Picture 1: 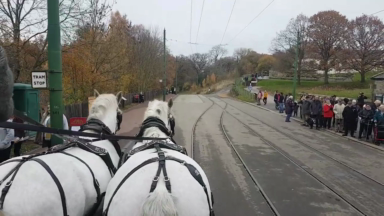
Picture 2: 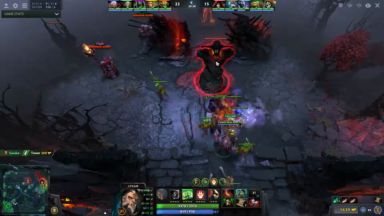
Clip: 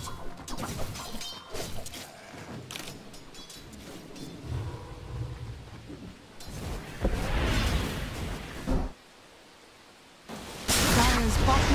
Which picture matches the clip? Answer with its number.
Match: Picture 2